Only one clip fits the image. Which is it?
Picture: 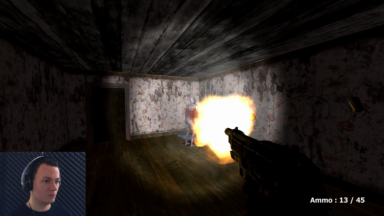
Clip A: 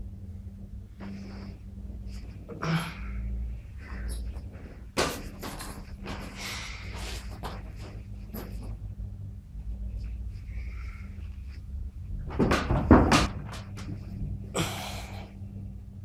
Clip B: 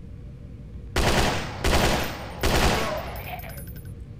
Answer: B